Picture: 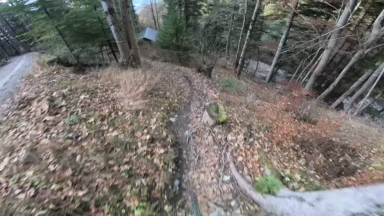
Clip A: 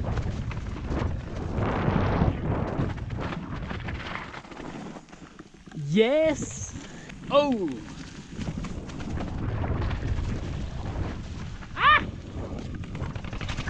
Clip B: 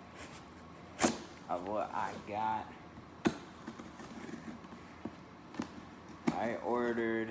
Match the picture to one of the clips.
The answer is A